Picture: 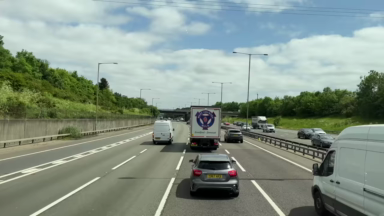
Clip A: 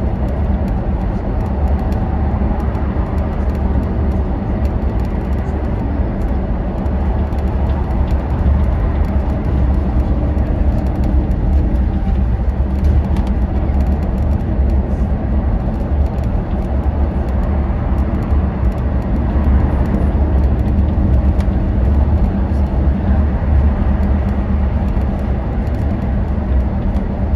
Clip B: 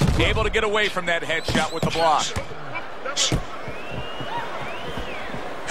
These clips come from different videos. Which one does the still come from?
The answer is A